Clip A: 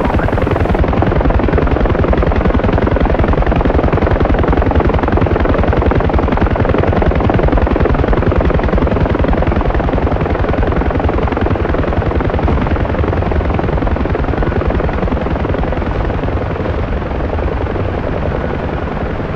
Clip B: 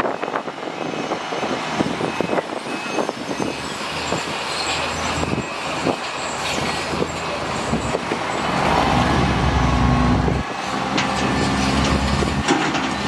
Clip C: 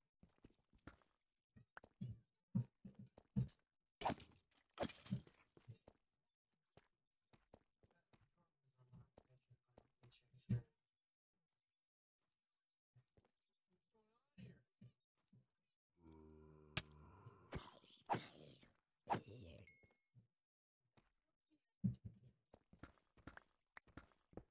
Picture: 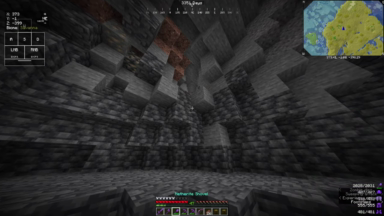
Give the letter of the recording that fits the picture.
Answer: C